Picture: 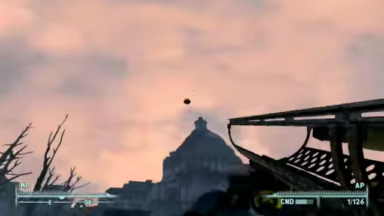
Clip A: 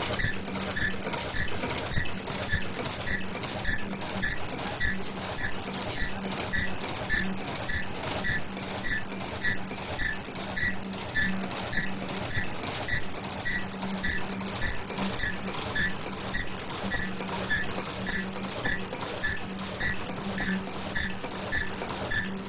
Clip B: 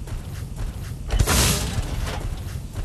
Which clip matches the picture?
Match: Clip B